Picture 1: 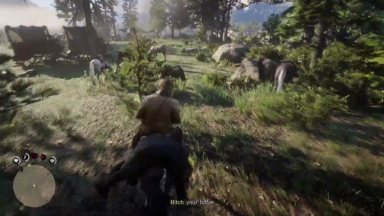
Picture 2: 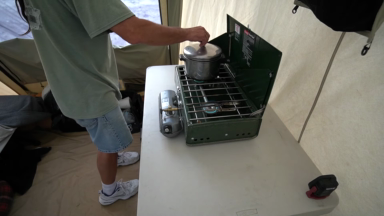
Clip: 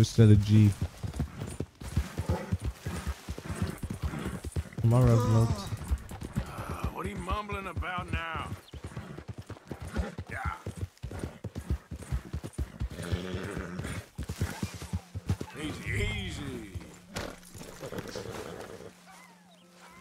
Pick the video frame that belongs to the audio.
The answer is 1